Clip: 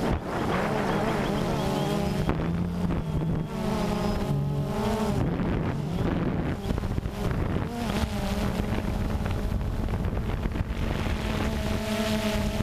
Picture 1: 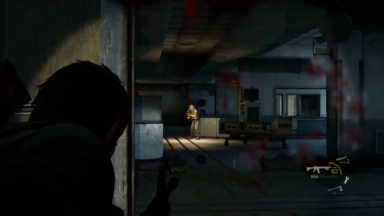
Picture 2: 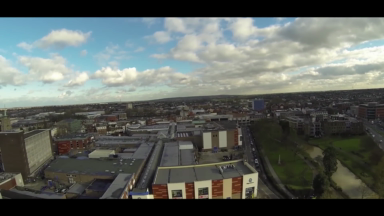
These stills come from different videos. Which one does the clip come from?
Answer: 2